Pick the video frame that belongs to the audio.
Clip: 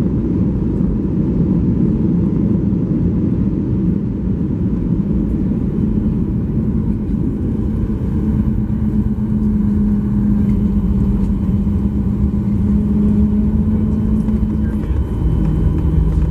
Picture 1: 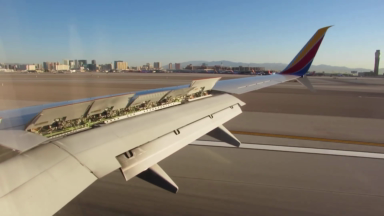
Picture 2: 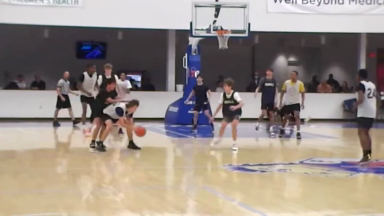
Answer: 1